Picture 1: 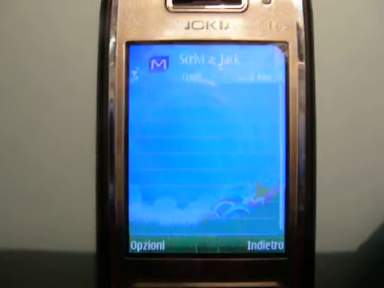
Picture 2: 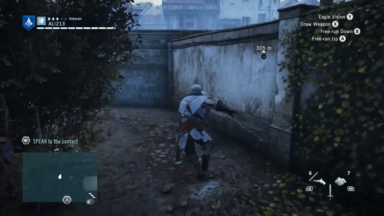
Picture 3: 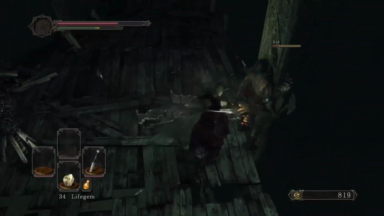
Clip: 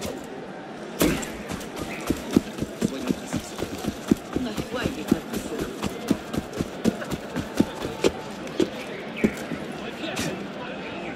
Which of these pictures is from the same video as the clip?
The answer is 2